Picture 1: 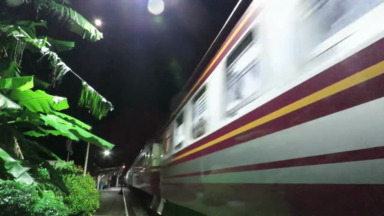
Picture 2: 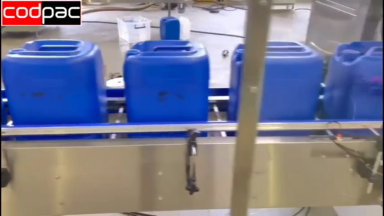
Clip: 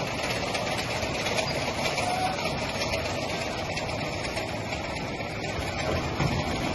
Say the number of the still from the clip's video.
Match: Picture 2